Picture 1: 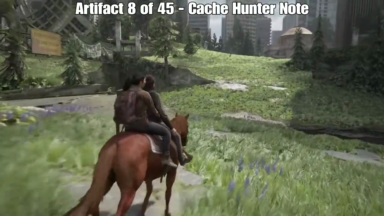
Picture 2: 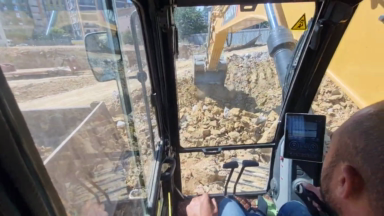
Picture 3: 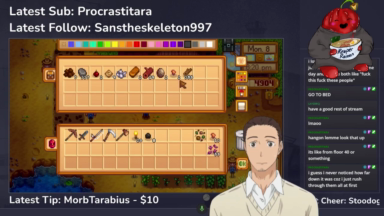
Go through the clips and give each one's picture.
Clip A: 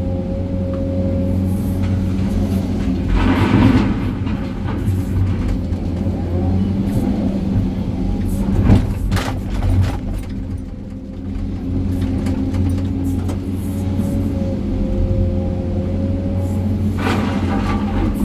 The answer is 2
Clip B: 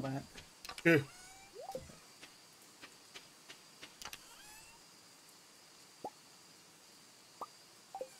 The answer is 3